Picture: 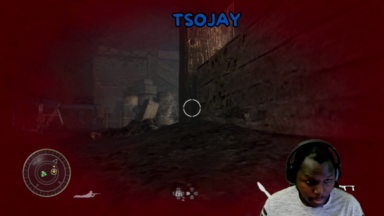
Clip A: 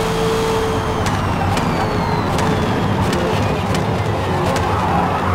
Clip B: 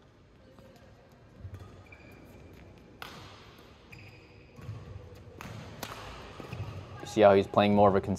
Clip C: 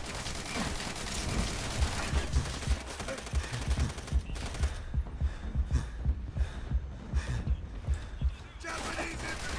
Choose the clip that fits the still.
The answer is C